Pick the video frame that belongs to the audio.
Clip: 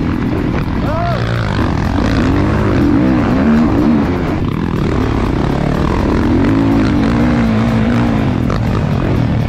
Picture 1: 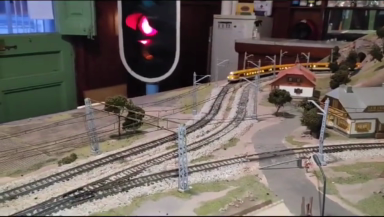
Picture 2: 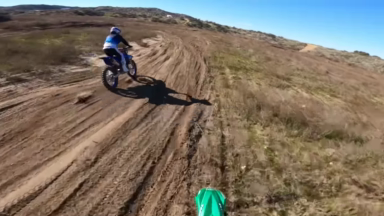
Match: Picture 2